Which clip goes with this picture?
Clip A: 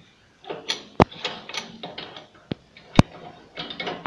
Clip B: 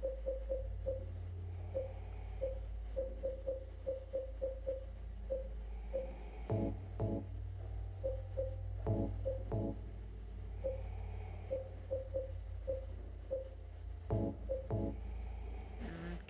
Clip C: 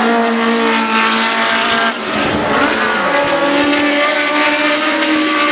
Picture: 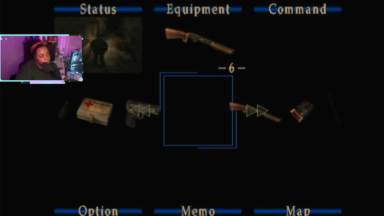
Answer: B